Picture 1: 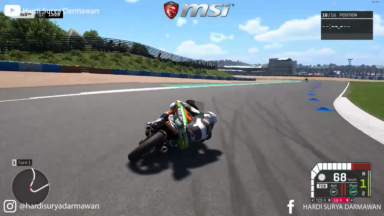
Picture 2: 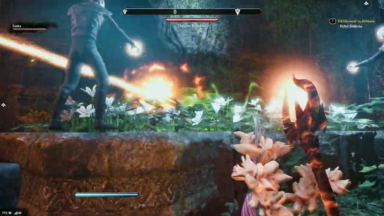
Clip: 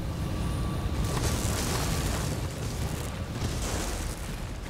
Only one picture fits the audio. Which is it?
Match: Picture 2